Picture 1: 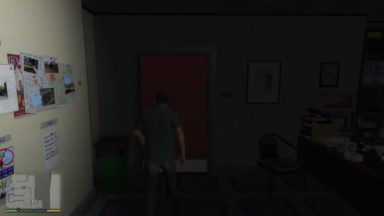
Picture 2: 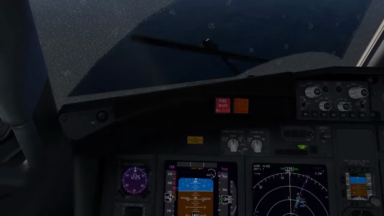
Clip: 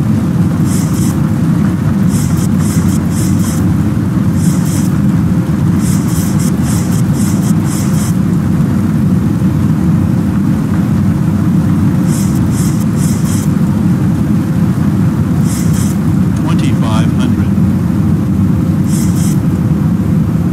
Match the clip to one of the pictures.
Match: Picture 2